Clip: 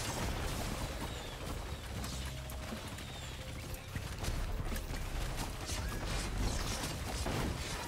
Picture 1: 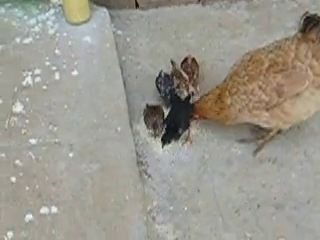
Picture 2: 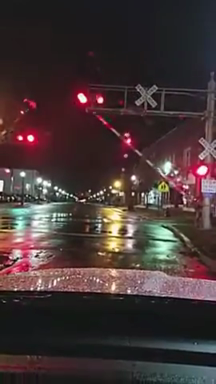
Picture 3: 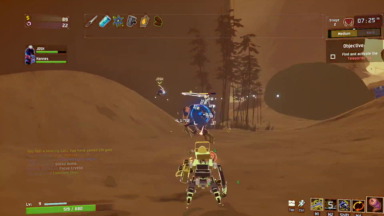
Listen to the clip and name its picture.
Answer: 3